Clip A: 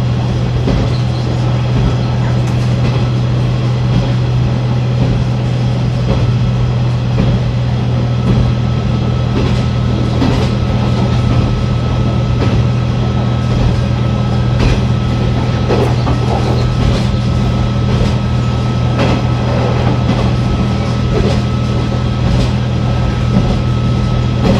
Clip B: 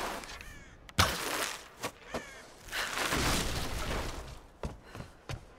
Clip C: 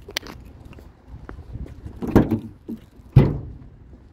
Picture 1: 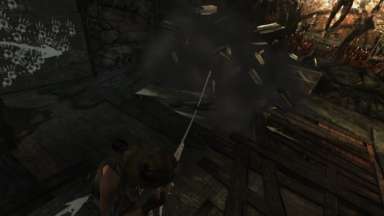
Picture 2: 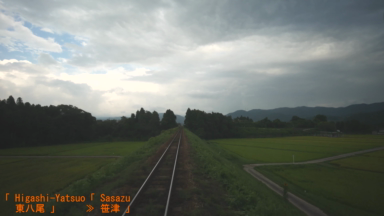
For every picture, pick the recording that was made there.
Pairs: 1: B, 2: A